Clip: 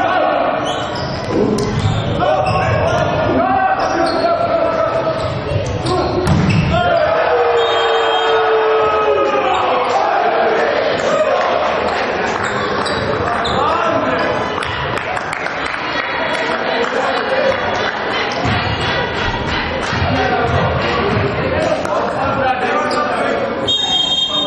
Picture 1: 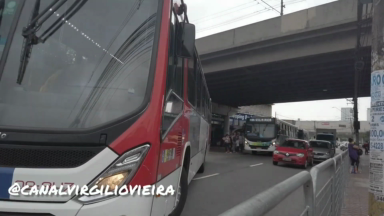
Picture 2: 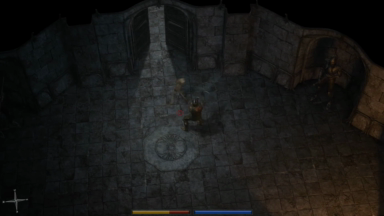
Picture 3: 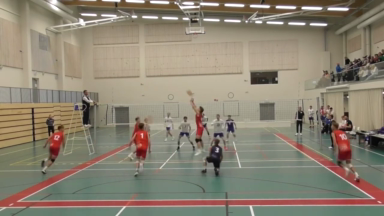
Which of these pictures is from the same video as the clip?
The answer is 3